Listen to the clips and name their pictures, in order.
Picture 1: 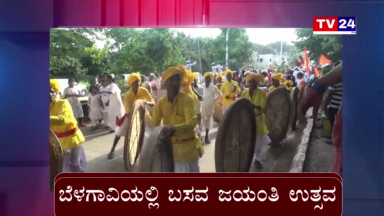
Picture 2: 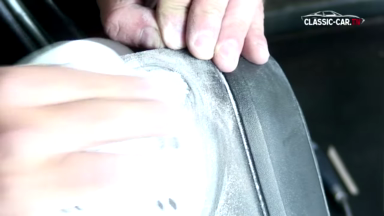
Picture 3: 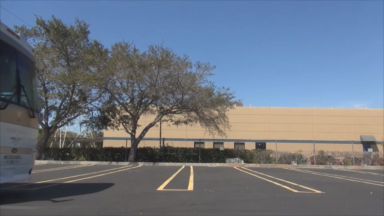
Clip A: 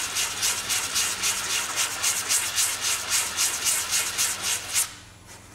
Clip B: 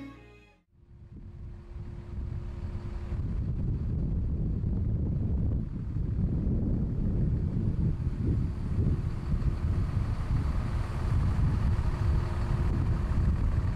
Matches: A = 2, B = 3